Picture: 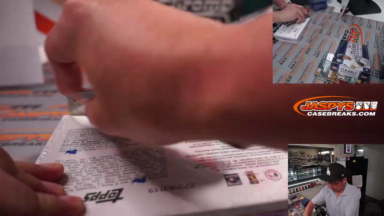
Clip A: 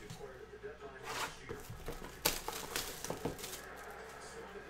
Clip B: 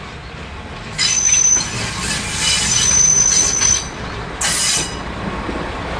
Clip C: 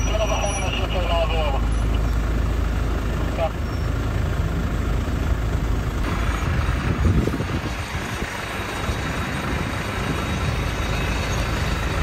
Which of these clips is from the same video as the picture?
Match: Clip A